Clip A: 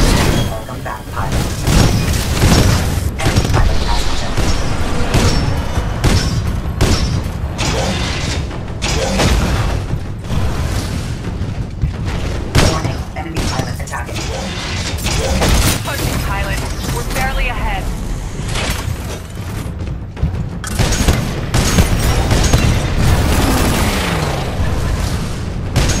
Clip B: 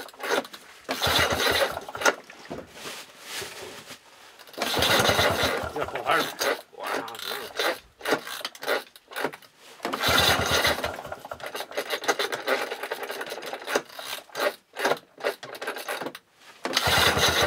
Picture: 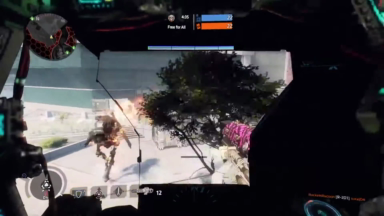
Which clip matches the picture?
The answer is A